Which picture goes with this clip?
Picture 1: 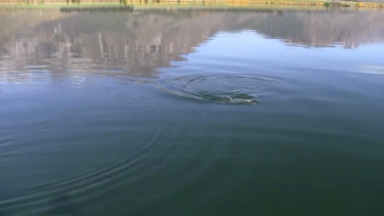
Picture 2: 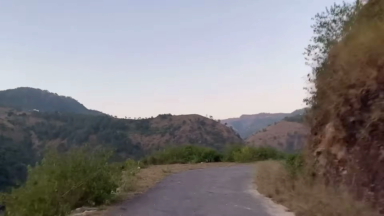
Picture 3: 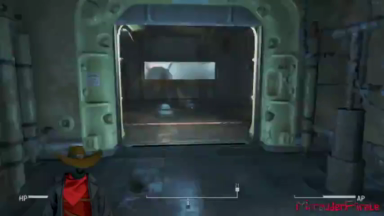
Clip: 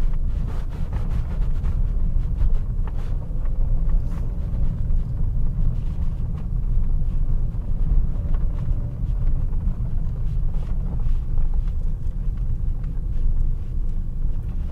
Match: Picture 2